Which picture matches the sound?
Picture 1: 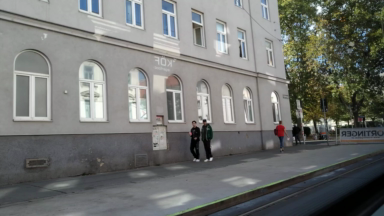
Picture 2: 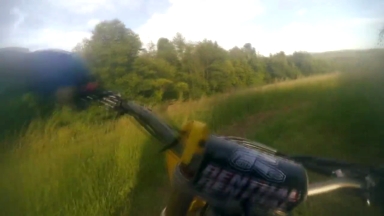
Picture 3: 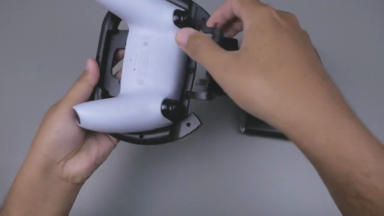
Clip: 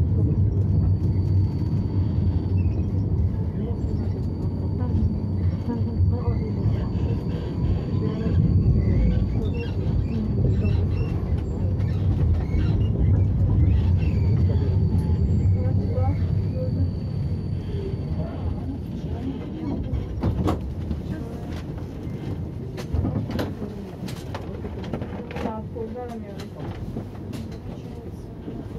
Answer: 1